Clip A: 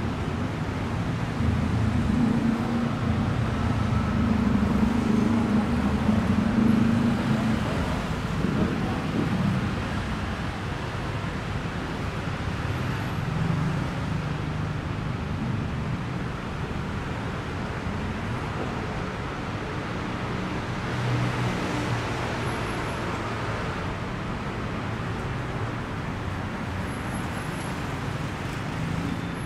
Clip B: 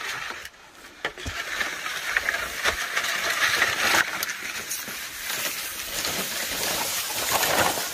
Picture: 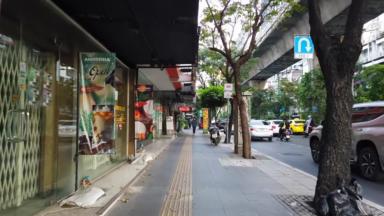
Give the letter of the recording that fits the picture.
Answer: A